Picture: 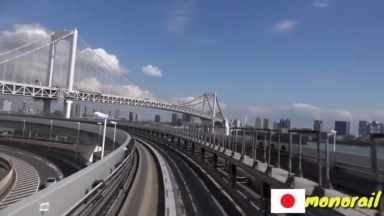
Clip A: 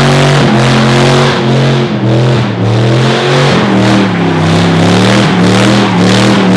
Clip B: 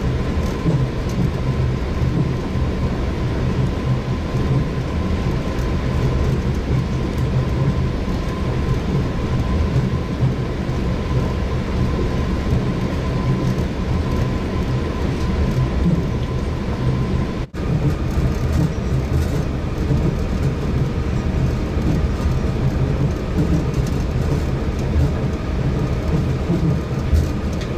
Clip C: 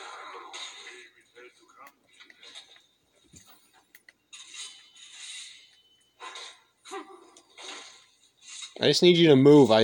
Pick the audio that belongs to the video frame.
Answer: B